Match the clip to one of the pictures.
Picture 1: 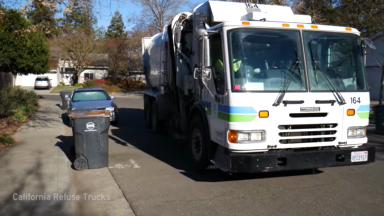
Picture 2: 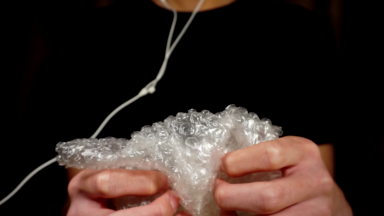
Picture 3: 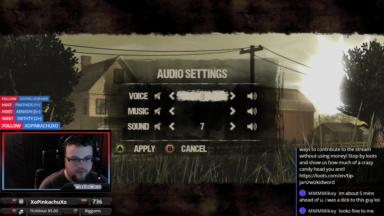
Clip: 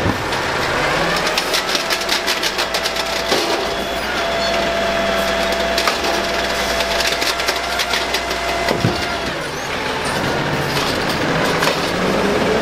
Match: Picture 1